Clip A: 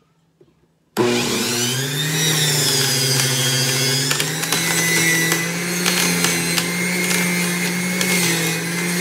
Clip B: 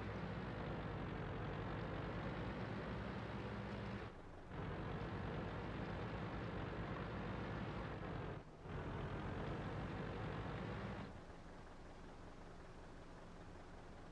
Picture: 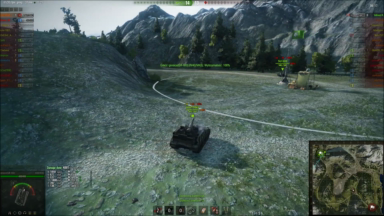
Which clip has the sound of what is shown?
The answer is B